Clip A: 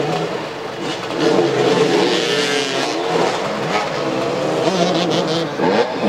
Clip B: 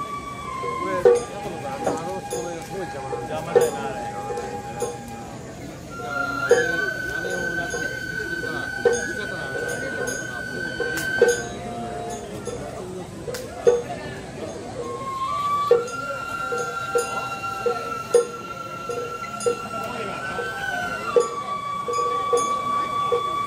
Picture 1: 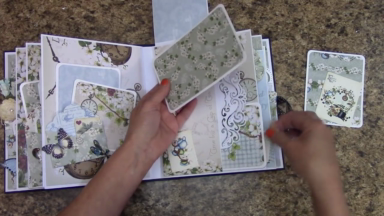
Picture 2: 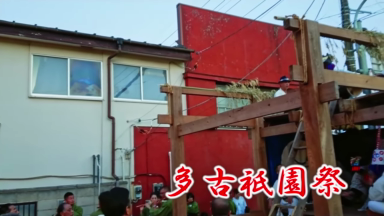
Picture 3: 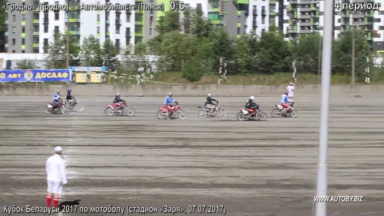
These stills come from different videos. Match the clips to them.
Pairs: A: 3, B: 2